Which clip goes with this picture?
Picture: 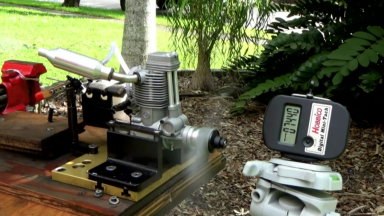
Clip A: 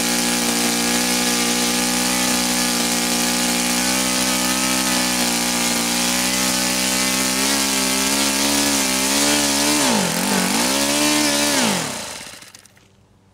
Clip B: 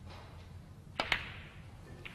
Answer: A